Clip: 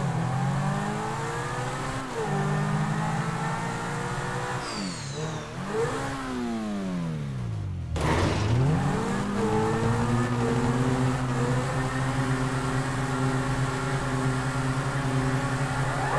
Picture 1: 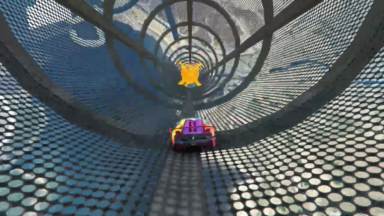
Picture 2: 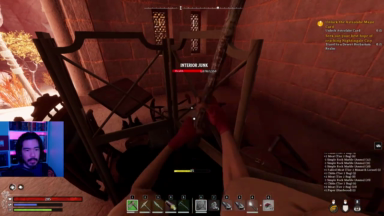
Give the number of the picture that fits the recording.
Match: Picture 1